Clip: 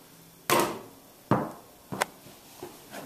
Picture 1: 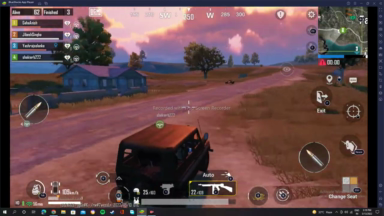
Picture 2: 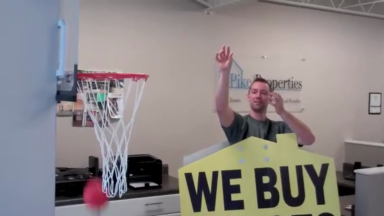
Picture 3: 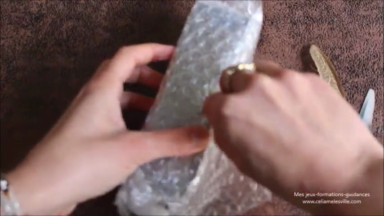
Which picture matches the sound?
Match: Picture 2